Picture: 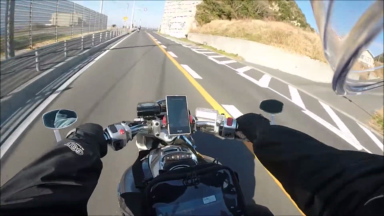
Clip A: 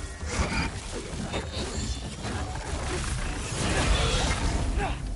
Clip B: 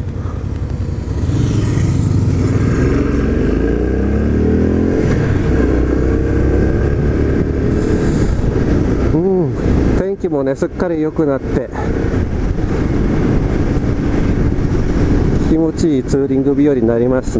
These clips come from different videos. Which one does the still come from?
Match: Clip B